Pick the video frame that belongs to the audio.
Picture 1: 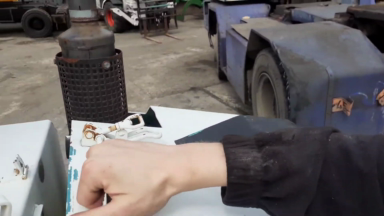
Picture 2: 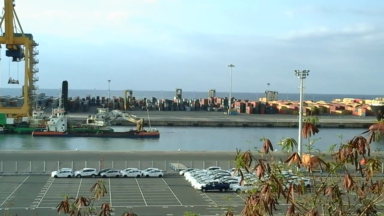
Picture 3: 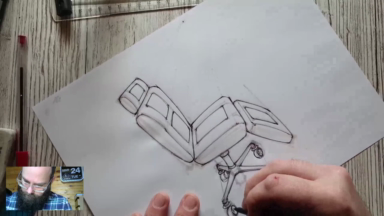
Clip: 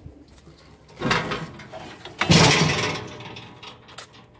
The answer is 1